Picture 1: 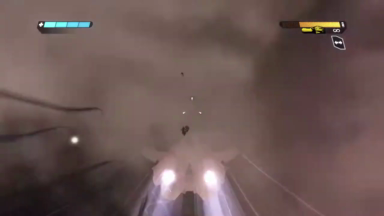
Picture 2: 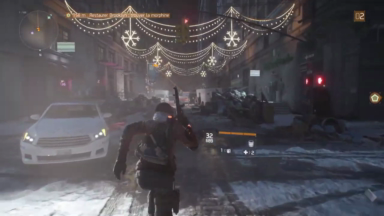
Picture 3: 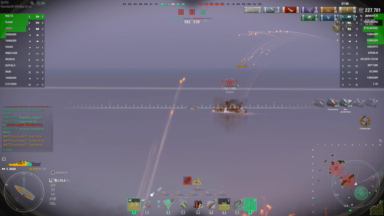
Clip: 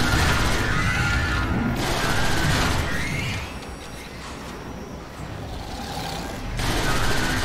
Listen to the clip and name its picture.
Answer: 1